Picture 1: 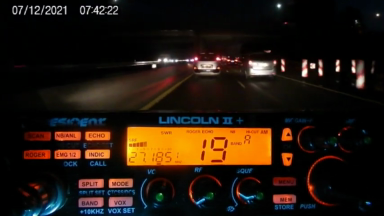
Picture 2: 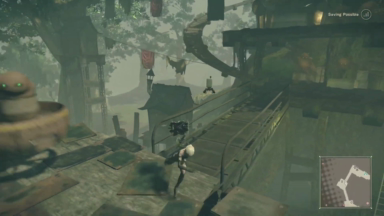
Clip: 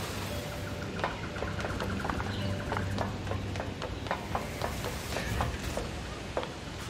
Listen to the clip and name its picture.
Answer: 2